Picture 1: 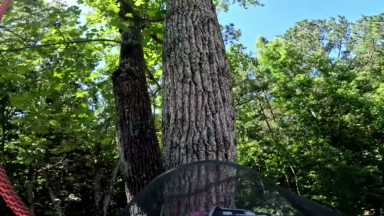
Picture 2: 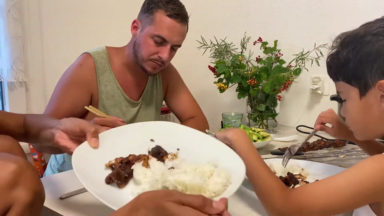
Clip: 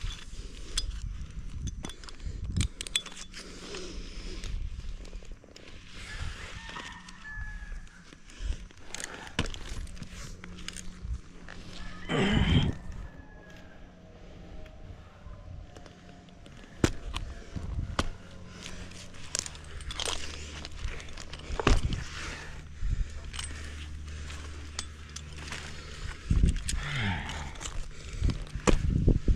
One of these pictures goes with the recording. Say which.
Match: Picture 1